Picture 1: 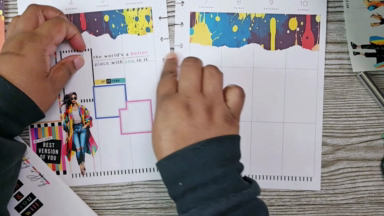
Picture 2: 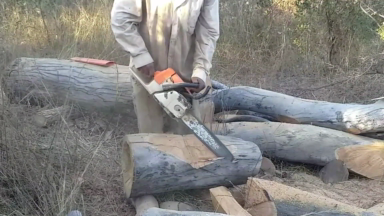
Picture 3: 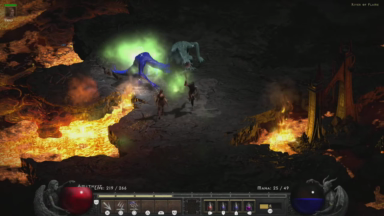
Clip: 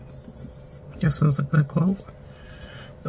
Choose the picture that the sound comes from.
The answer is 1